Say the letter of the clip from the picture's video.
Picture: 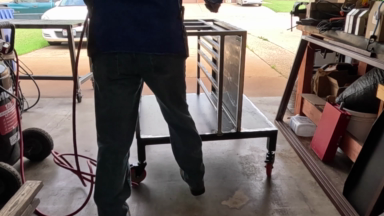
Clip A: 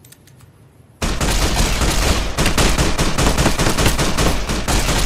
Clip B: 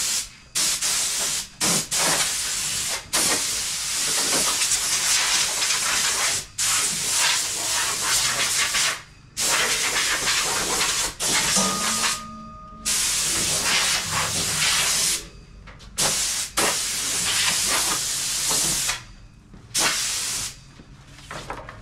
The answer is B